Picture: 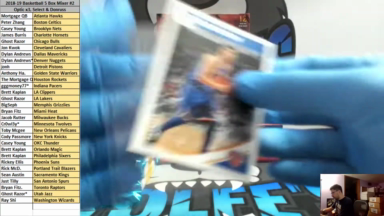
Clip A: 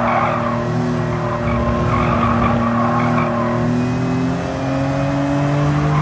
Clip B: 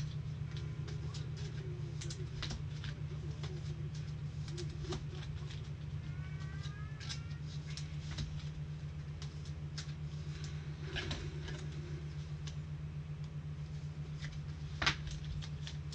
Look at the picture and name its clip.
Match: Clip B